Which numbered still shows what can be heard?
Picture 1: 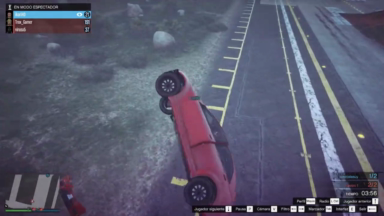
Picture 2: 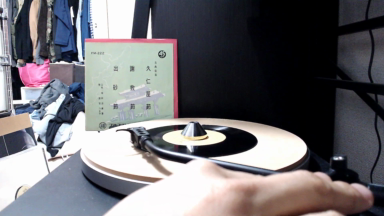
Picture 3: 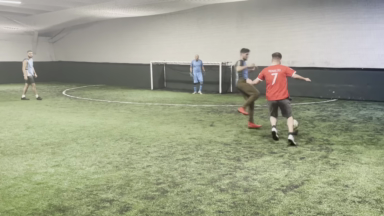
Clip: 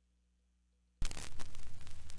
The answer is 2